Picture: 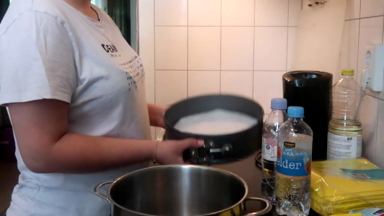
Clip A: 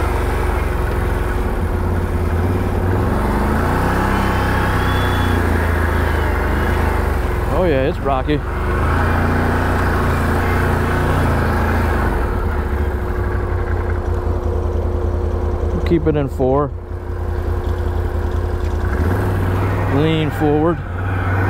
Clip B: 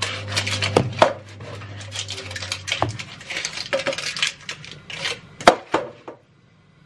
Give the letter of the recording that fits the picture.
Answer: B